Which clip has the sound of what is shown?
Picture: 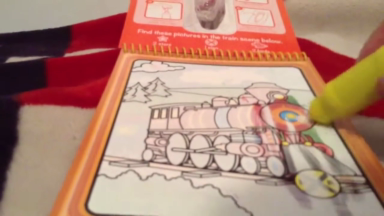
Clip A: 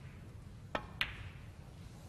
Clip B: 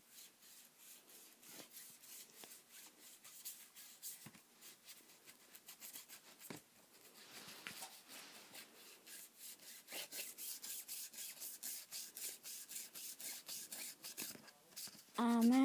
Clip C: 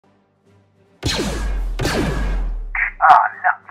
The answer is B